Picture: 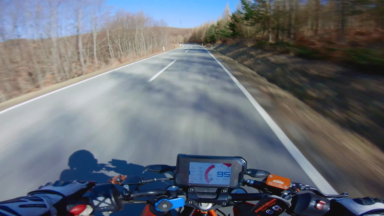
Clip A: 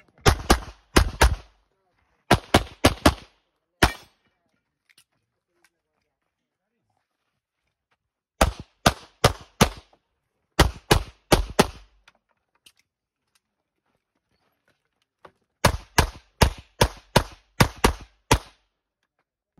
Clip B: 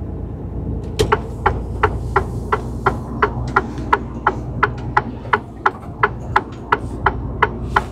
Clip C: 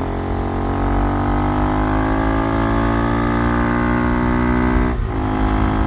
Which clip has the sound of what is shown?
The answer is C